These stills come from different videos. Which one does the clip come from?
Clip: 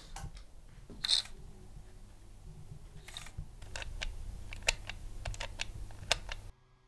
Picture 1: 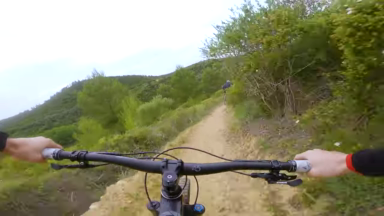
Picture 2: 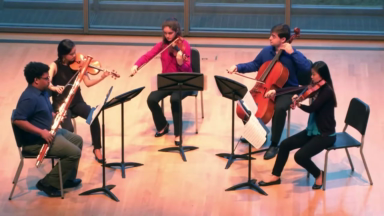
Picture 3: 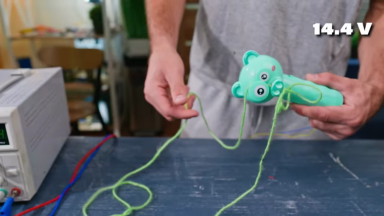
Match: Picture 3